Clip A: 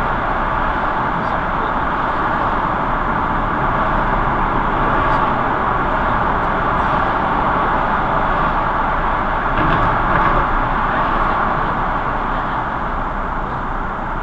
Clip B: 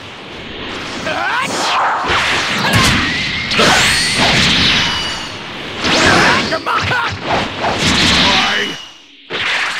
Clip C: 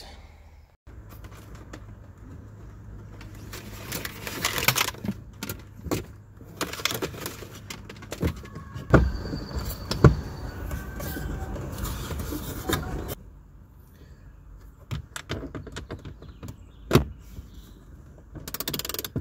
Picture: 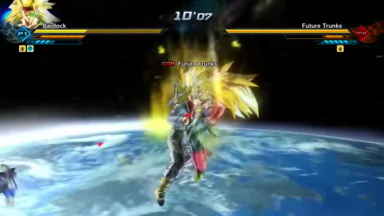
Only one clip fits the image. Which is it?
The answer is B